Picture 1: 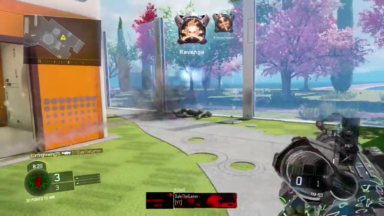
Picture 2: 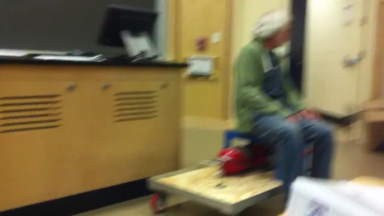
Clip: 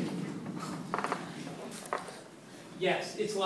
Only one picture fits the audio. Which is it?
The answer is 2